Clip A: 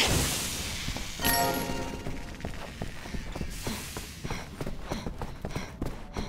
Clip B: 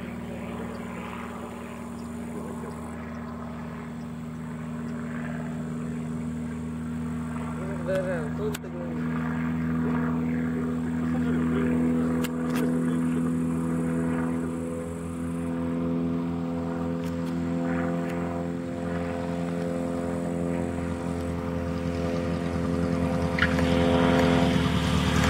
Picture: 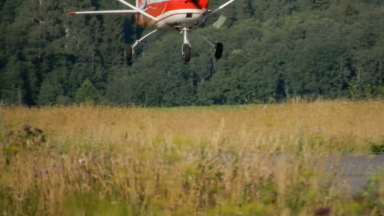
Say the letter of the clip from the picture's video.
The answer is B